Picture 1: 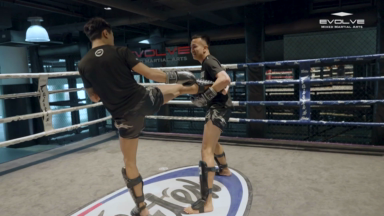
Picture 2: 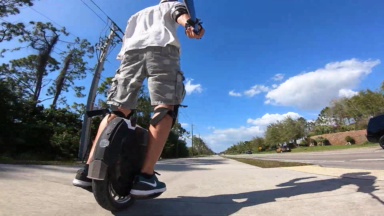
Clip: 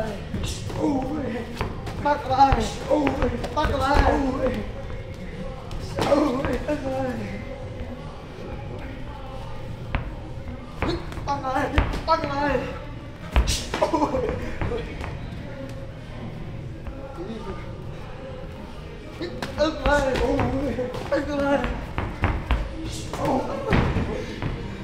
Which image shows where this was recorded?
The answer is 1